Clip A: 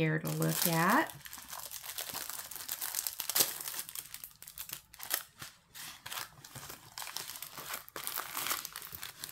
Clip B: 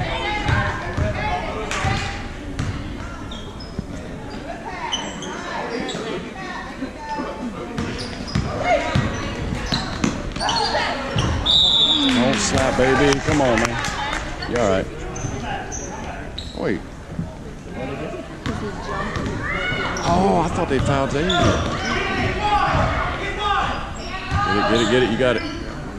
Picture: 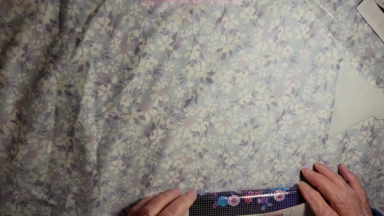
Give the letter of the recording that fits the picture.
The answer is A